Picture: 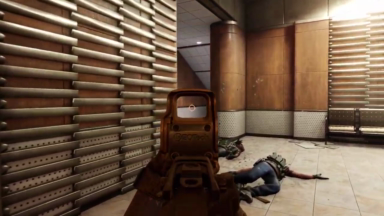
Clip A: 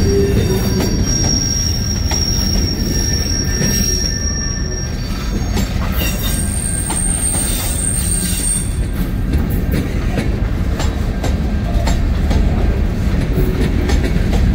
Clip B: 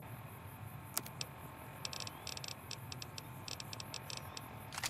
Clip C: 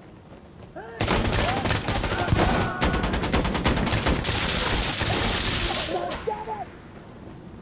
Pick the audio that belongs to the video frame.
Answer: C